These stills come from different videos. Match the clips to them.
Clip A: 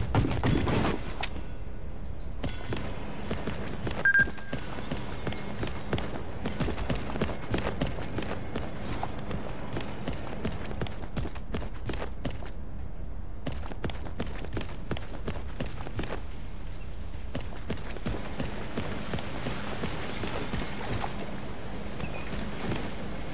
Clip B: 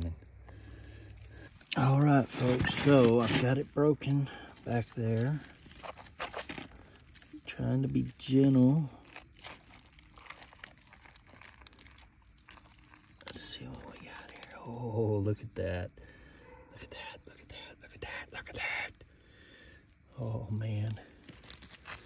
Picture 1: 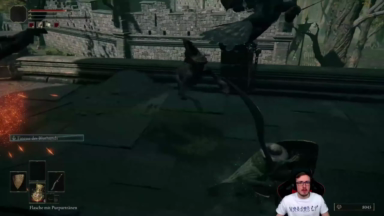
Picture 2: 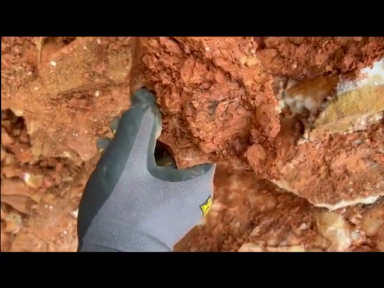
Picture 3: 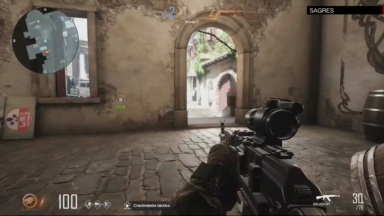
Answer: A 3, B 2